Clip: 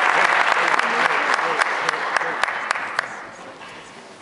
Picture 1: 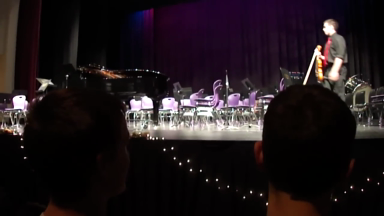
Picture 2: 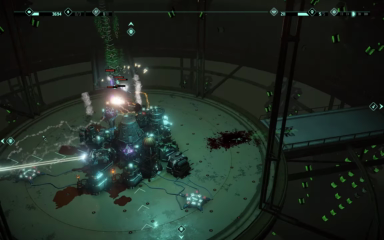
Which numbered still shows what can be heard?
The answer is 1